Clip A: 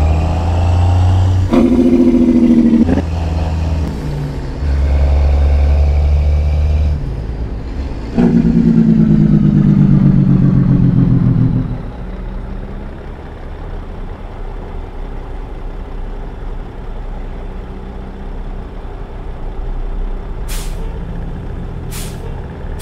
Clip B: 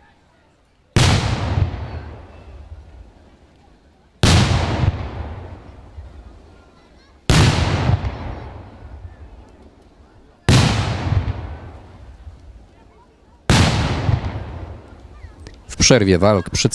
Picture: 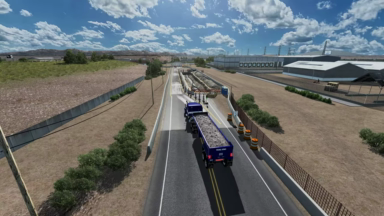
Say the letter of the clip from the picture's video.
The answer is A